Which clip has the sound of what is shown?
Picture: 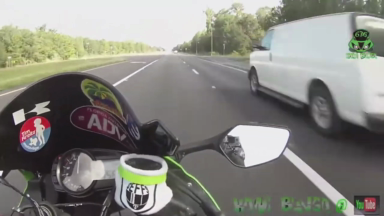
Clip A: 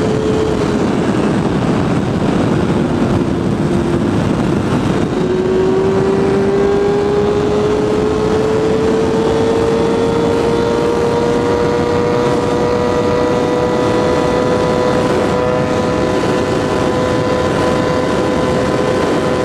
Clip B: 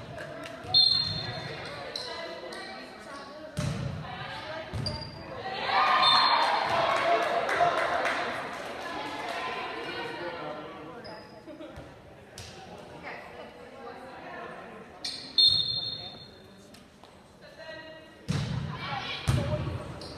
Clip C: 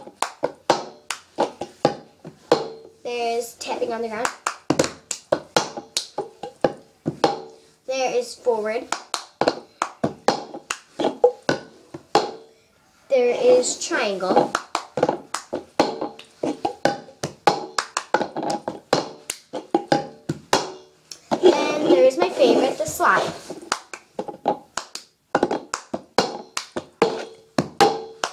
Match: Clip A